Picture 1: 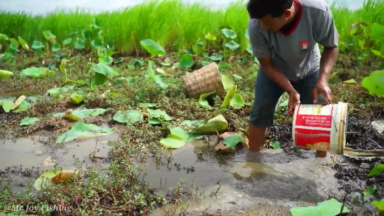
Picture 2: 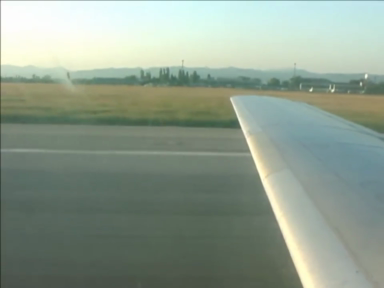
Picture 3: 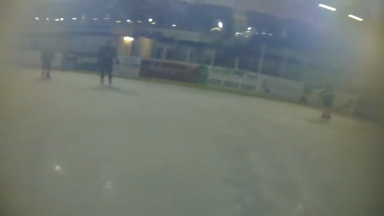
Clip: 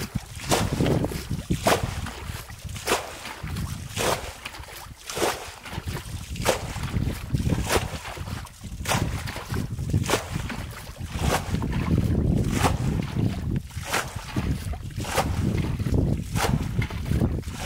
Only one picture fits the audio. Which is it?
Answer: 1